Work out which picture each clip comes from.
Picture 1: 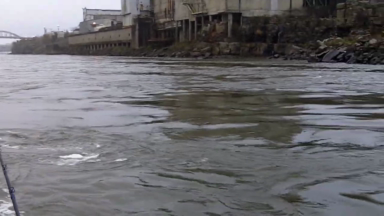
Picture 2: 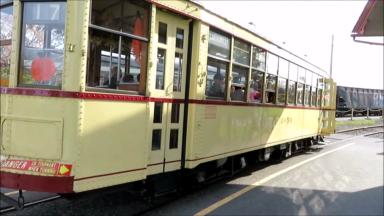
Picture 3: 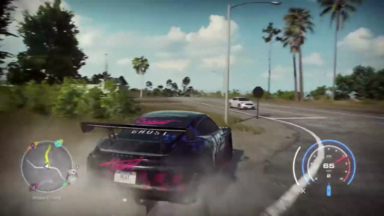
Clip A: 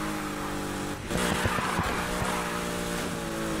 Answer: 3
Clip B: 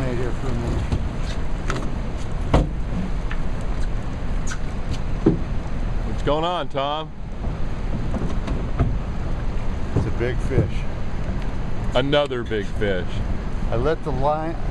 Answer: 1